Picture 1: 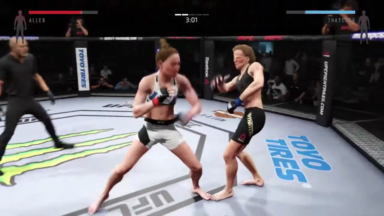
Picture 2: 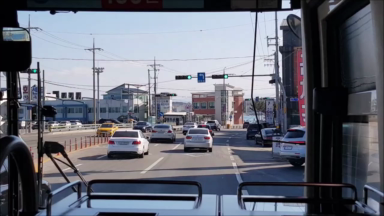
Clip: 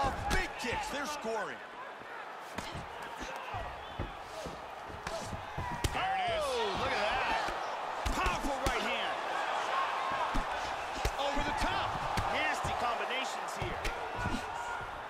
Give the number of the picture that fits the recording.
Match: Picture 1